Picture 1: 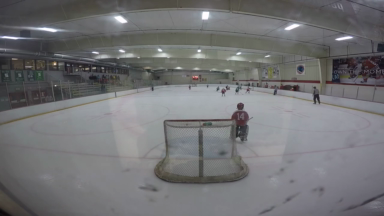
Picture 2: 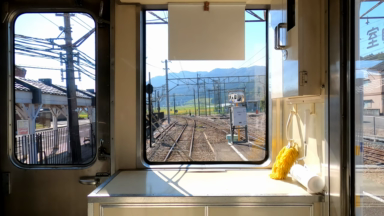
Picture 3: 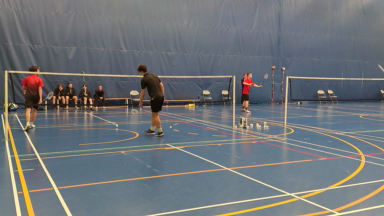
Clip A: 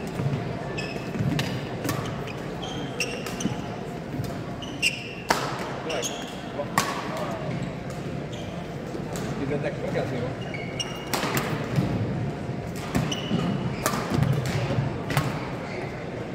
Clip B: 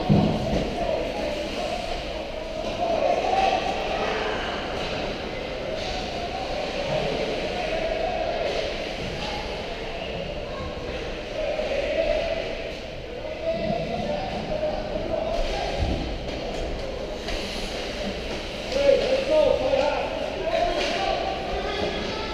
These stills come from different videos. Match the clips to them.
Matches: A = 3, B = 1